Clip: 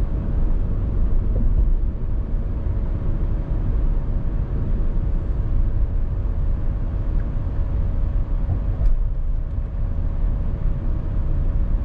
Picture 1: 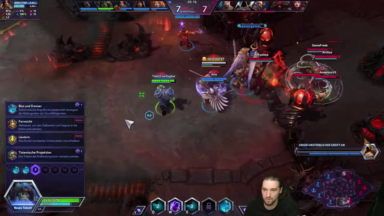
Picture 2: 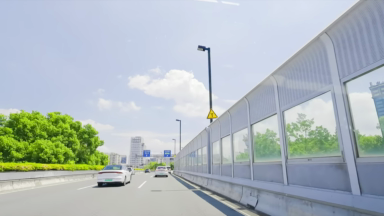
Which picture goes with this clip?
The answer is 2